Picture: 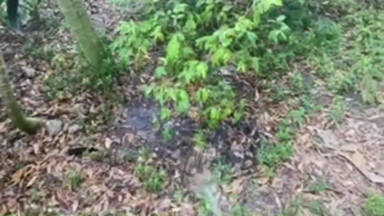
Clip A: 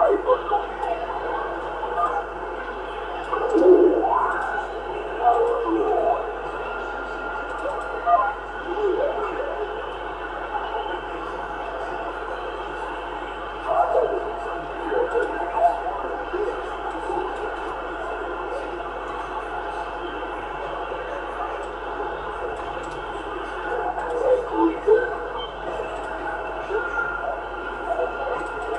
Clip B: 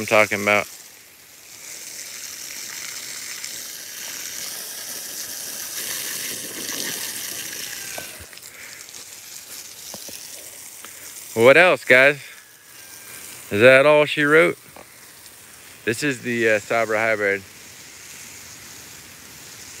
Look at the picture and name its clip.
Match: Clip B